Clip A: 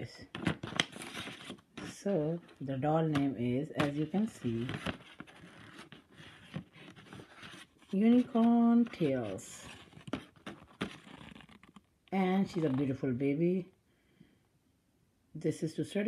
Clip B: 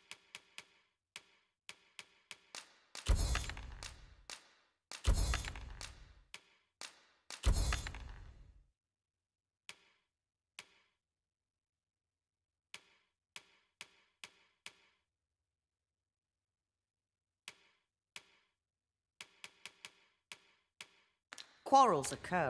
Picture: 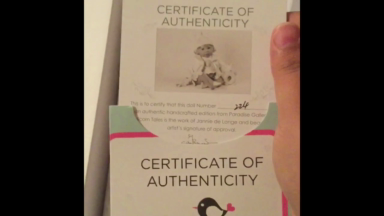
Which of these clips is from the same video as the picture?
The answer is A